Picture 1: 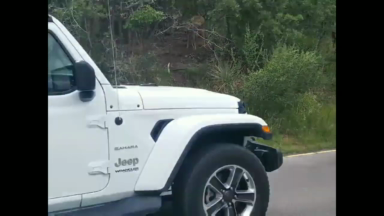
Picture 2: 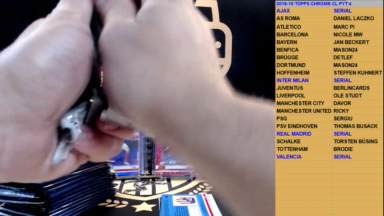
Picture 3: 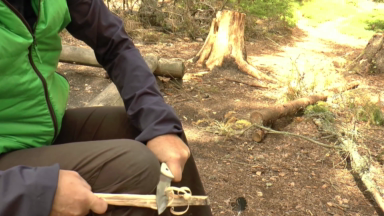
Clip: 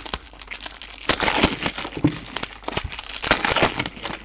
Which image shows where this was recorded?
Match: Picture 2